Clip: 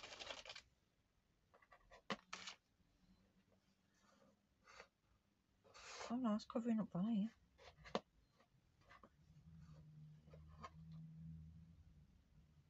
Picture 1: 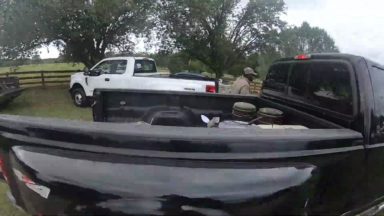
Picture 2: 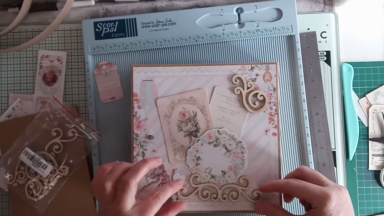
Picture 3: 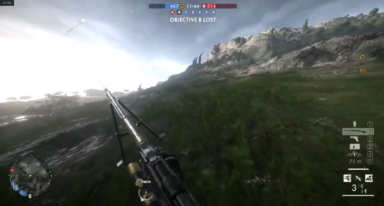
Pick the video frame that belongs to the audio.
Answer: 2